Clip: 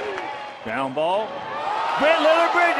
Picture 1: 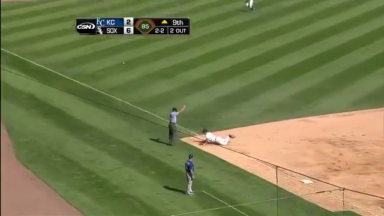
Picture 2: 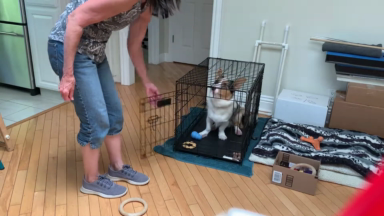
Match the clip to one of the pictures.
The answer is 1